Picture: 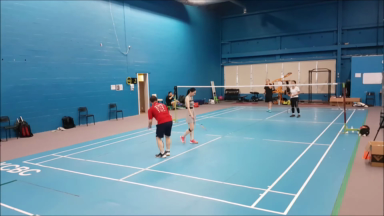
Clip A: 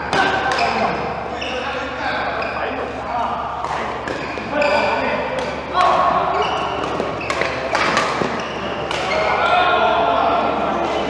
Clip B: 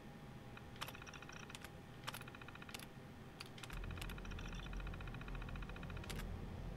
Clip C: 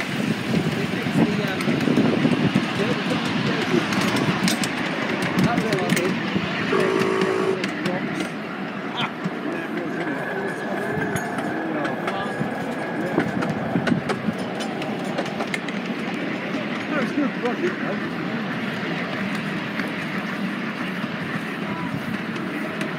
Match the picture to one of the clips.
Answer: A